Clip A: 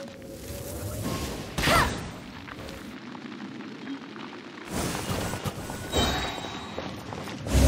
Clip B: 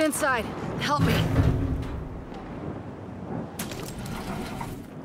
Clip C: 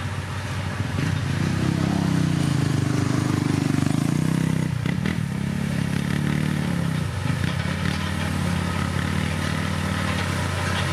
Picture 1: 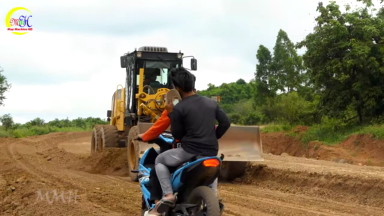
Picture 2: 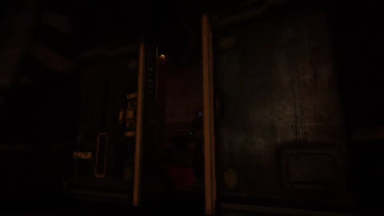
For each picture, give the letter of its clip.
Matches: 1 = C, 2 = B